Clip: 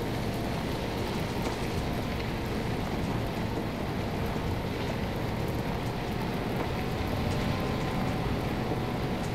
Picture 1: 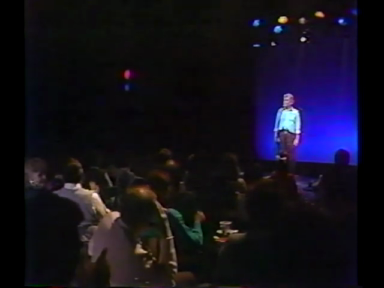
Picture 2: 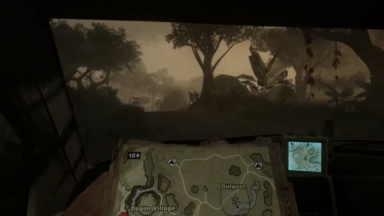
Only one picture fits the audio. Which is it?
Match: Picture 2